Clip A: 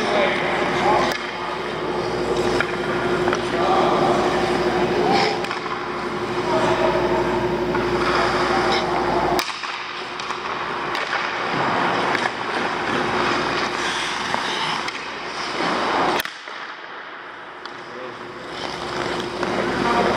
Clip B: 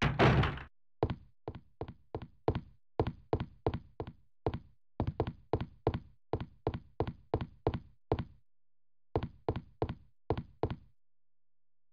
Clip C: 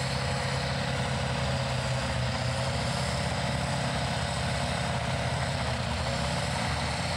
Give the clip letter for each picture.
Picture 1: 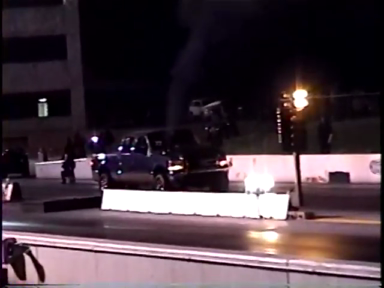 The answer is C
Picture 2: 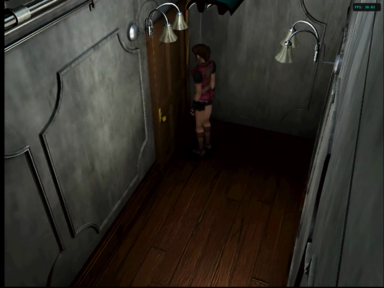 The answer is B